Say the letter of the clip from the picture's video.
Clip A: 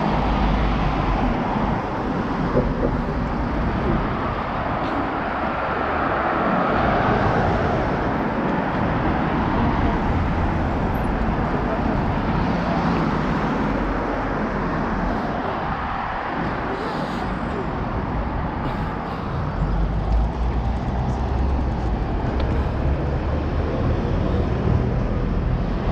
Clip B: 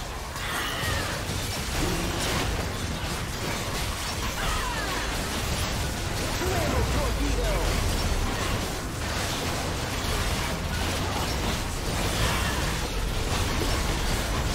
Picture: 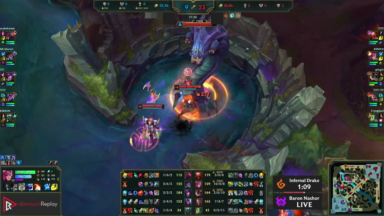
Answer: B